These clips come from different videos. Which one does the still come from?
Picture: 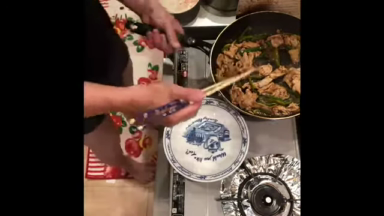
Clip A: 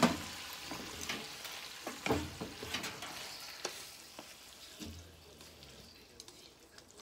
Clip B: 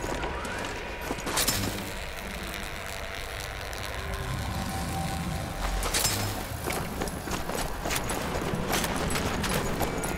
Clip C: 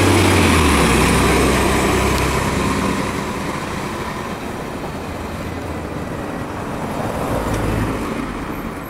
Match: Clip A